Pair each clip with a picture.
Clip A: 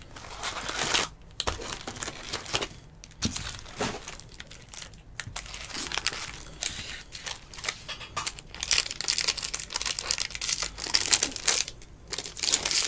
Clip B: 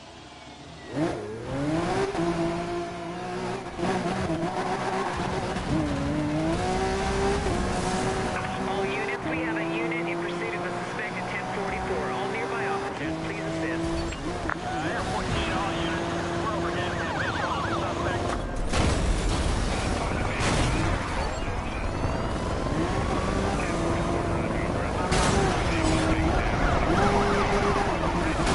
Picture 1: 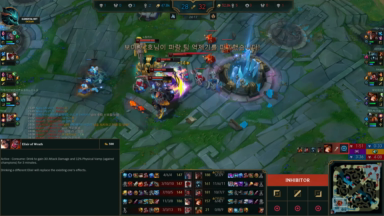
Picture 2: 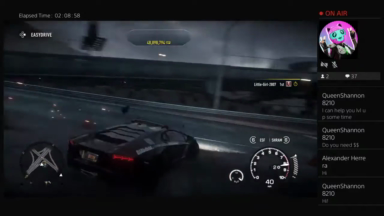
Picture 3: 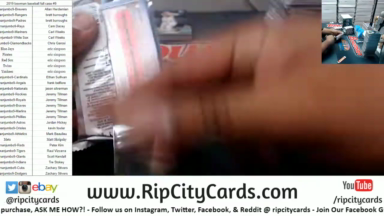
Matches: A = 3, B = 2